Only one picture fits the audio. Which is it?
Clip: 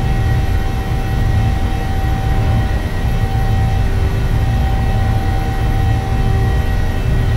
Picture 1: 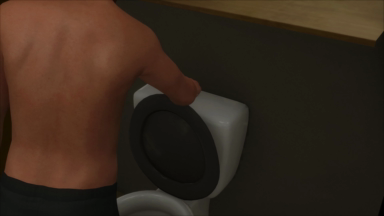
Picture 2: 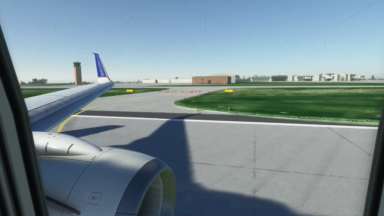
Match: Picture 2